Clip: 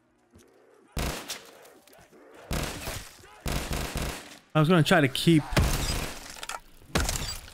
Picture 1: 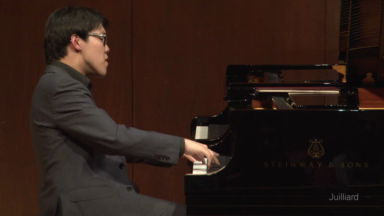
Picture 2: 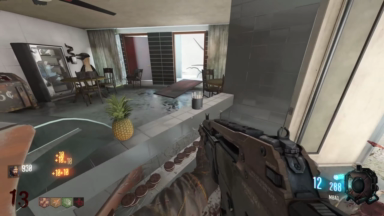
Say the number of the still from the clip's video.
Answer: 2